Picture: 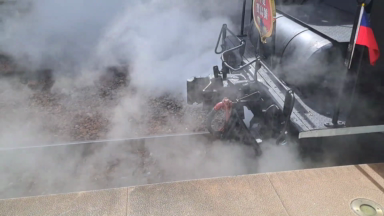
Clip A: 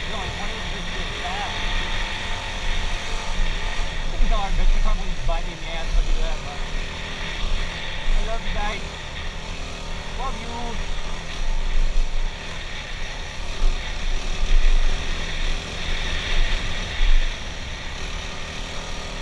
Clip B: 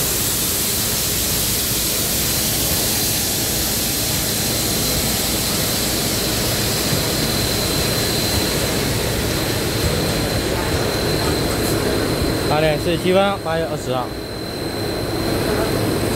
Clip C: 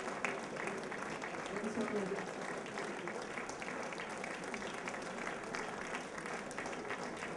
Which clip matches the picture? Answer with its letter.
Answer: B